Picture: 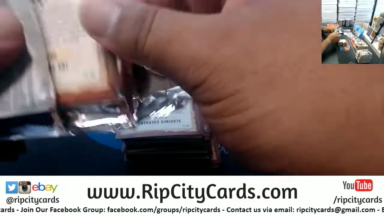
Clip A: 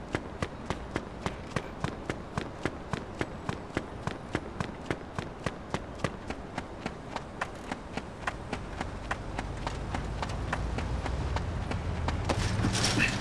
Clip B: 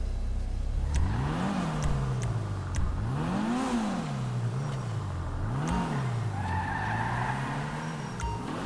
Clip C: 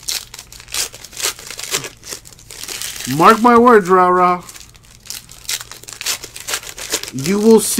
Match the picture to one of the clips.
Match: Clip C